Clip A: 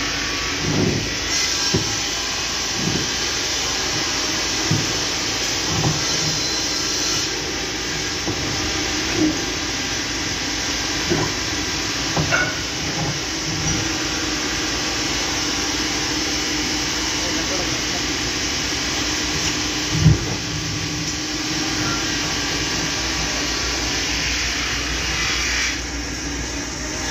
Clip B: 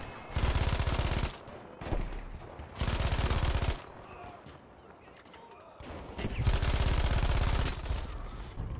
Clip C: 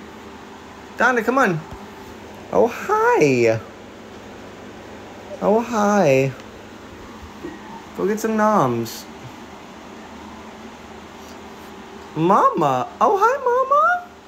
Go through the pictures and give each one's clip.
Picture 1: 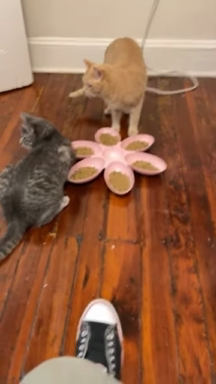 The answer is C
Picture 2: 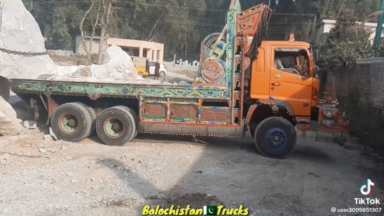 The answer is A